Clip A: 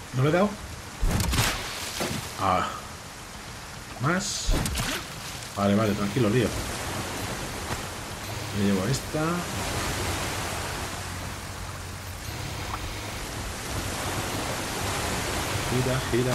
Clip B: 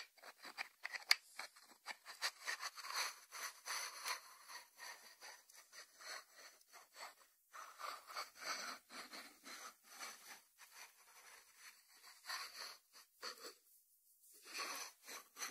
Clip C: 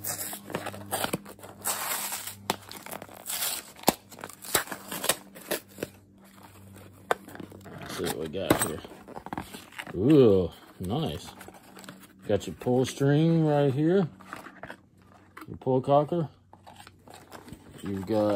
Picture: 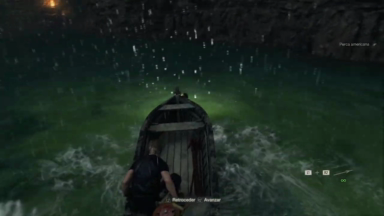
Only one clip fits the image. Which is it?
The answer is A